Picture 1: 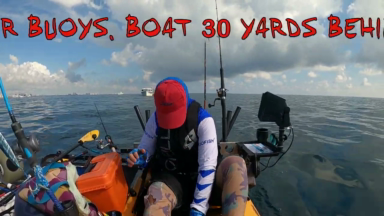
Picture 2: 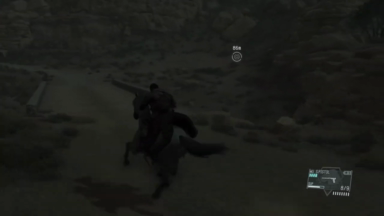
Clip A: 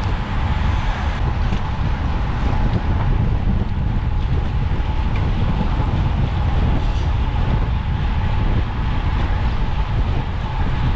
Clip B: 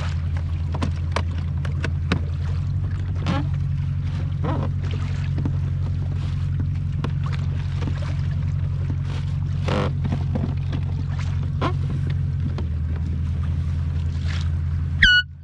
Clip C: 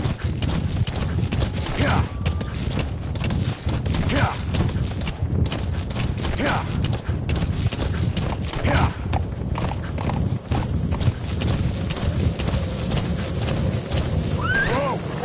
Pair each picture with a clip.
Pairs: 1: B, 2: C